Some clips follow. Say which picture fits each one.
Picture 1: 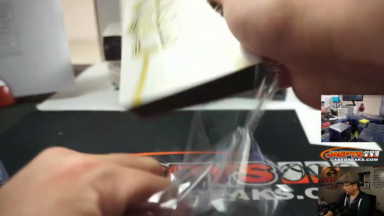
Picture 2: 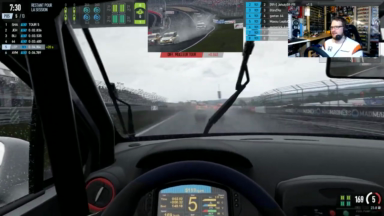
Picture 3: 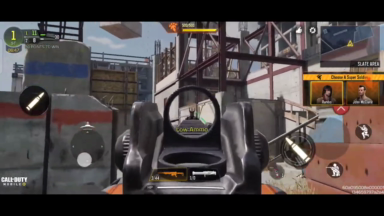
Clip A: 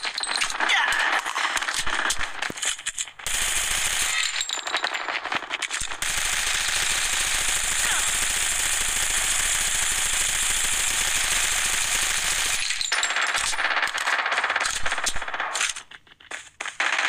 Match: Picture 3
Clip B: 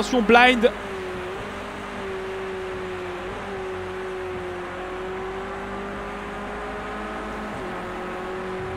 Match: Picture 2